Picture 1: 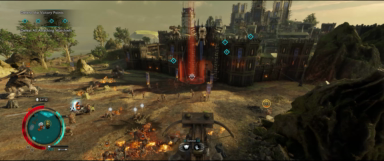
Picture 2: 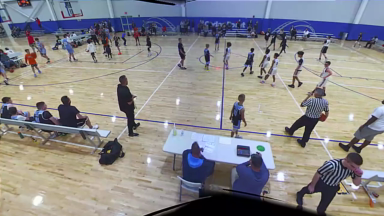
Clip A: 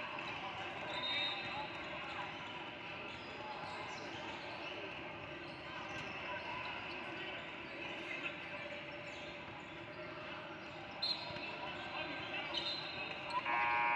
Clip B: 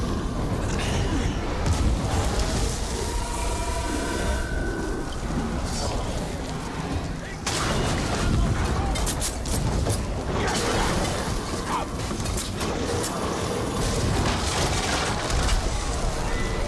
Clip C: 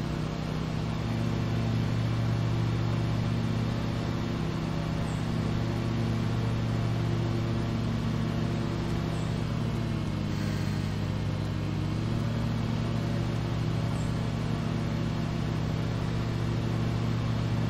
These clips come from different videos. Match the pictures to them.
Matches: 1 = B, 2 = A